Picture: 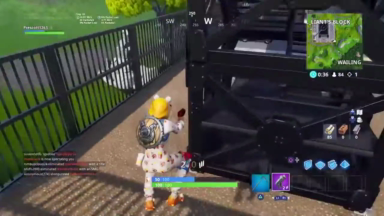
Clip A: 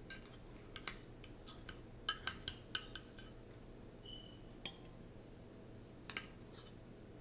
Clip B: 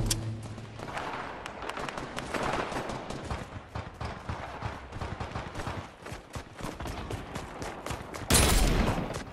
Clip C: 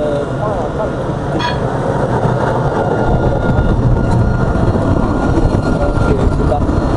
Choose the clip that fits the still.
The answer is B